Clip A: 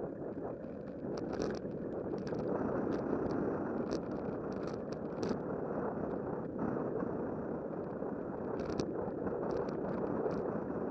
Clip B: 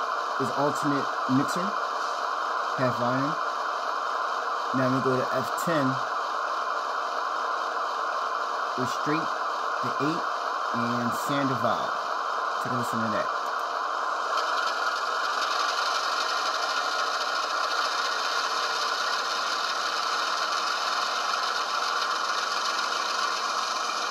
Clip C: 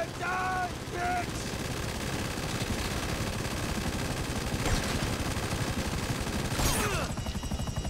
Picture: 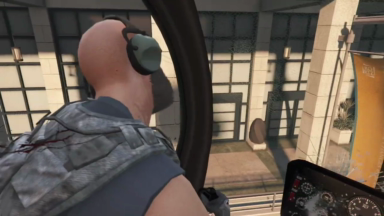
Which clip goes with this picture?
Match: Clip C